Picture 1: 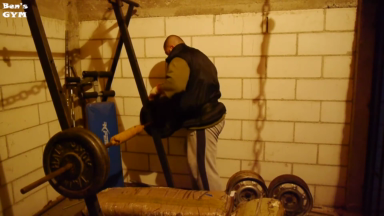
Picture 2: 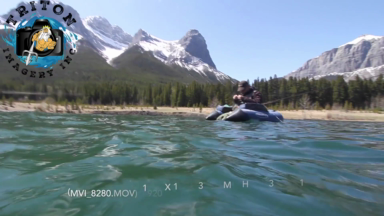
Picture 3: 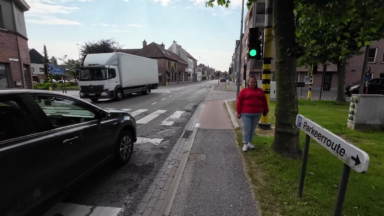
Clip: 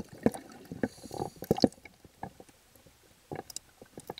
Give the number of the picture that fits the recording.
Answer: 2